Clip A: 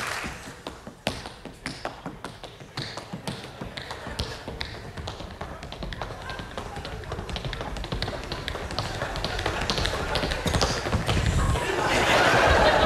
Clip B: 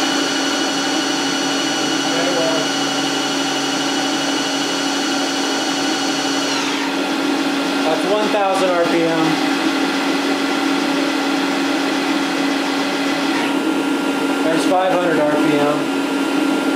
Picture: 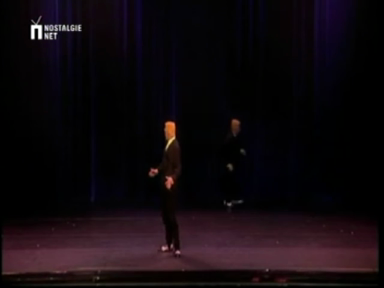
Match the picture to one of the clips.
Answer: A